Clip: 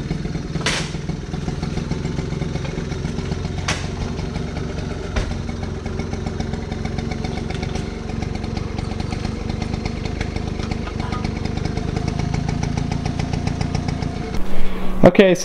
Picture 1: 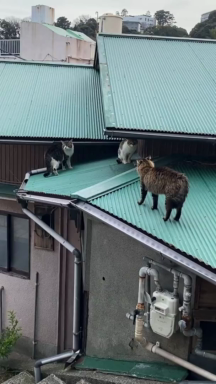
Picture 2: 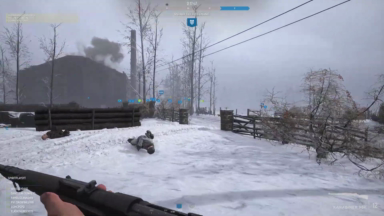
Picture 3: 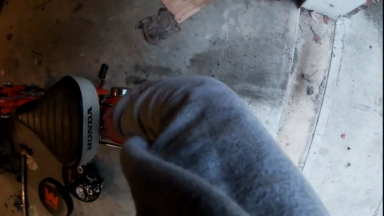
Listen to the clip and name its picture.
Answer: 3